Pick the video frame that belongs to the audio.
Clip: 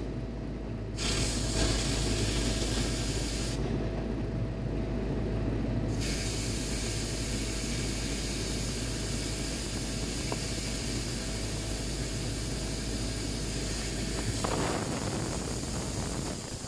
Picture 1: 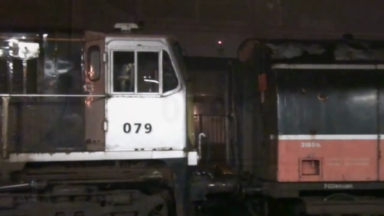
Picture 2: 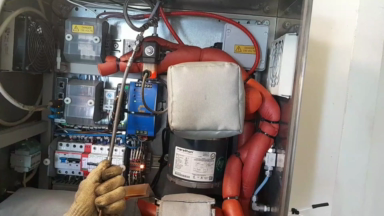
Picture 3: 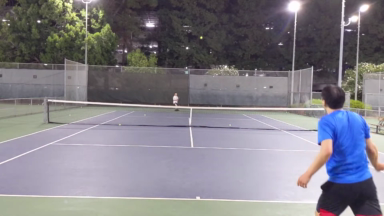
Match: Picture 2